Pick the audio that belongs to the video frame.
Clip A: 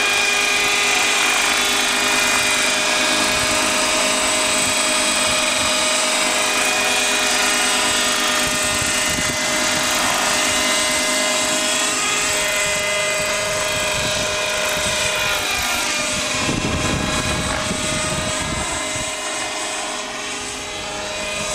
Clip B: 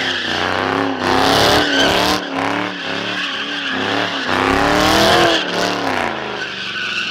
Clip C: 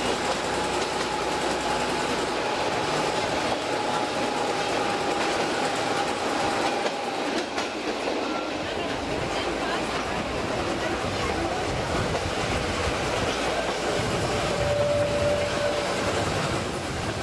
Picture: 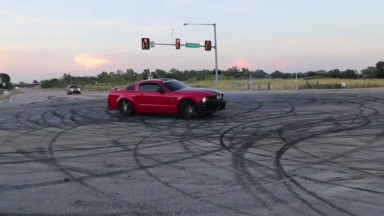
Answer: B